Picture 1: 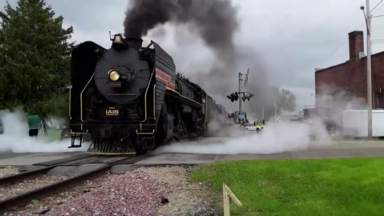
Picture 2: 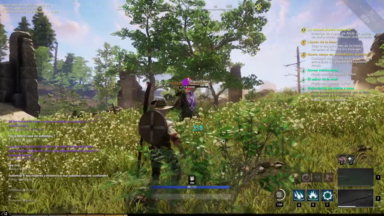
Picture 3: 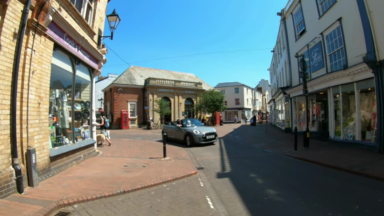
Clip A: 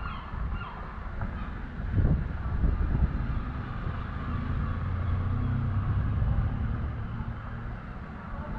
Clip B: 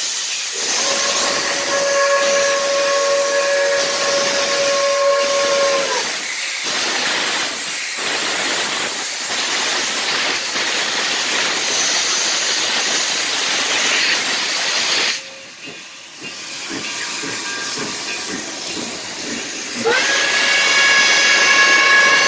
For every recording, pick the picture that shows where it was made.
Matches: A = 3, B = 1